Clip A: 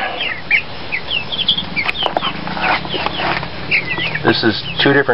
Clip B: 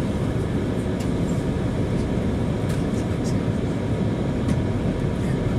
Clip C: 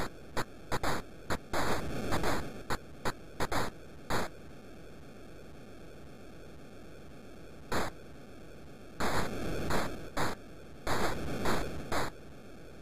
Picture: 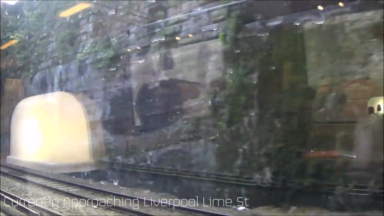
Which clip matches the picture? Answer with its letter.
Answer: B